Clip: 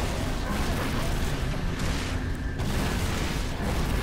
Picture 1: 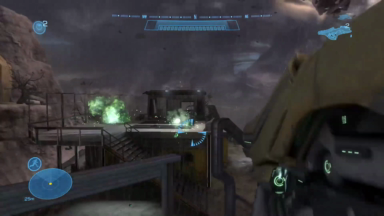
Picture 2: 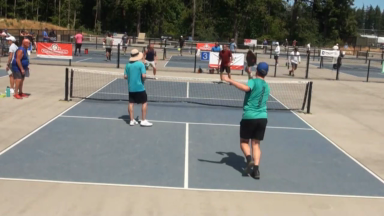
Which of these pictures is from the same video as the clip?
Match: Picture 1